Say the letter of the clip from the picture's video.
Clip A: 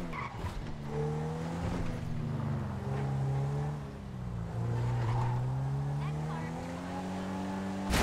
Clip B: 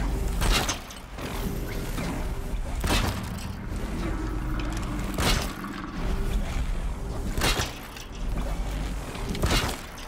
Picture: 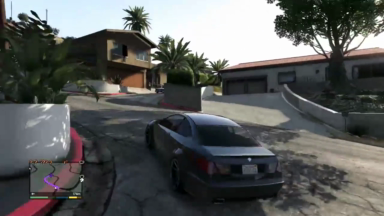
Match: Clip A